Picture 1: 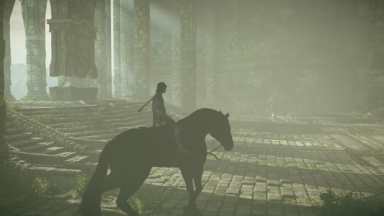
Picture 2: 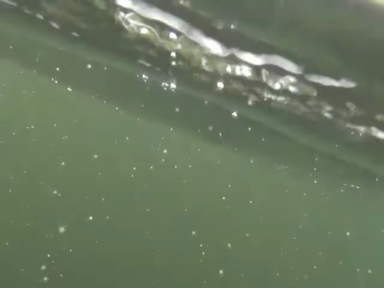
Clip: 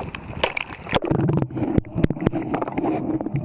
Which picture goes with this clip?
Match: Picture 2